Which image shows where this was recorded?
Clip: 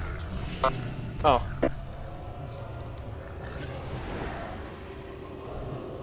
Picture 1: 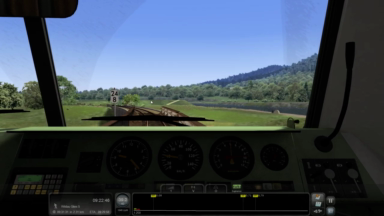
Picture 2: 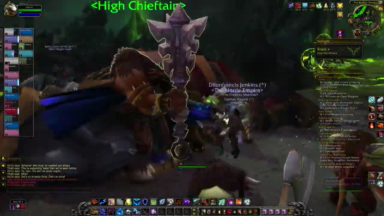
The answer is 2